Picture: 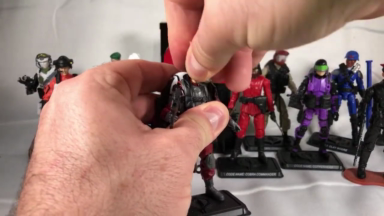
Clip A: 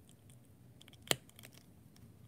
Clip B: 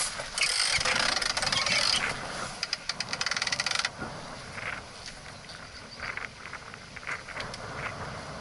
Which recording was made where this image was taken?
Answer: A